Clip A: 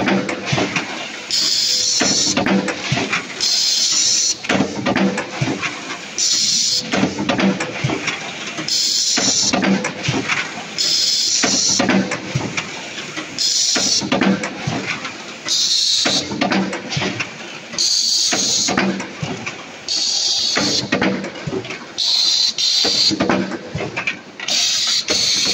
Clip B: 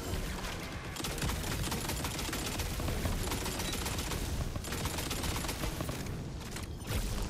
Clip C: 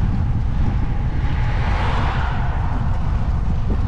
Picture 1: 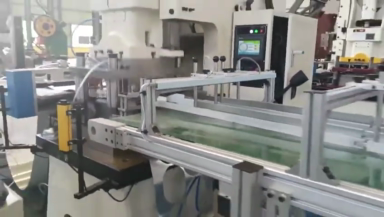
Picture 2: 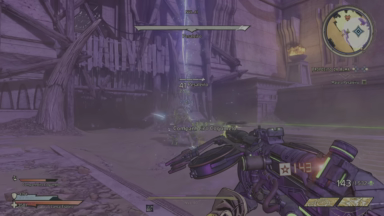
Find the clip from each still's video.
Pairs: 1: A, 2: B